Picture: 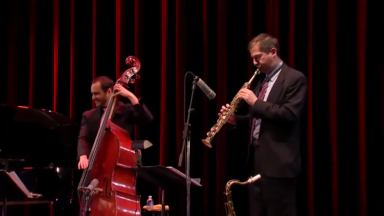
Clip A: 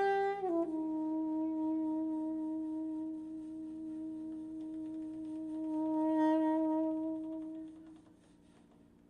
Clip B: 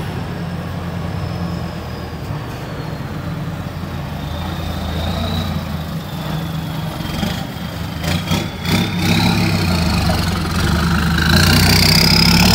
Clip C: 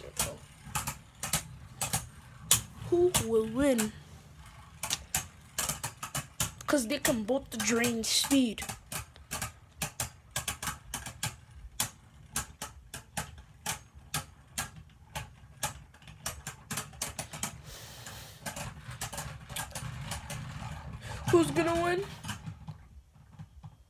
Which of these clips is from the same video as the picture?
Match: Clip A